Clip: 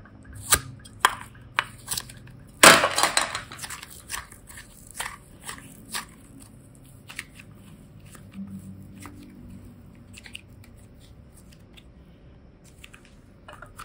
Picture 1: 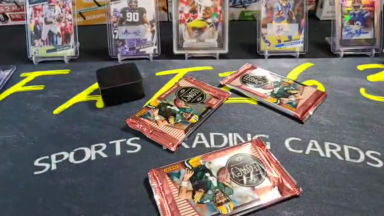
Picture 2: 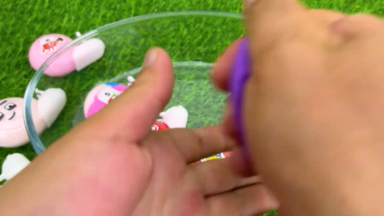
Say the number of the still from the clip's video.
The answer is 2